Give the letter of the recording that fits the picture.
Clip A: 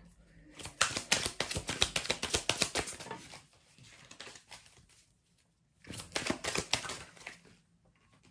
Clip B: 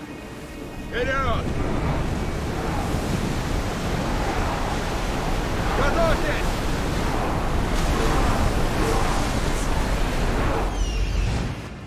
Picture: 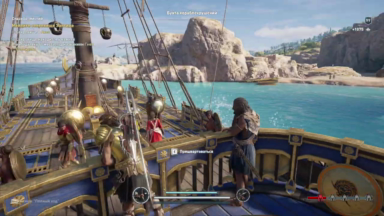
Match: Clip B